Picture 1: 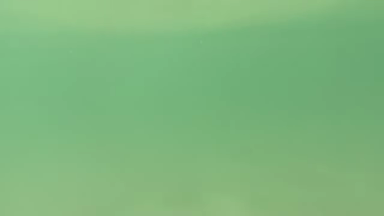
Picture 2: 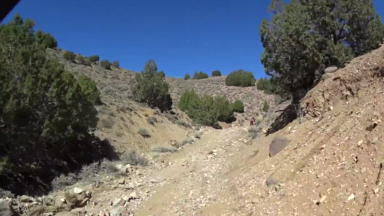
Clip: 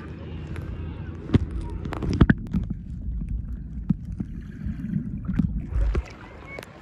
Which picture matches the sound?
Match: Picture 1